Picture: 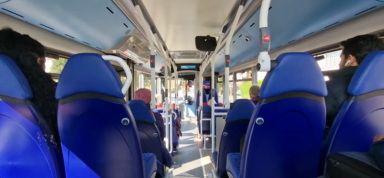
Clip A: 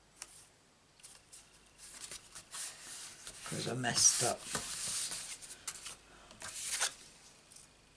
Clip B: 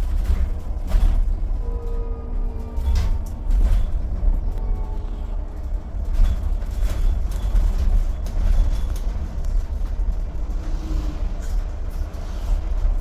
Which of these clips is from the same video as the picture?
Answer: B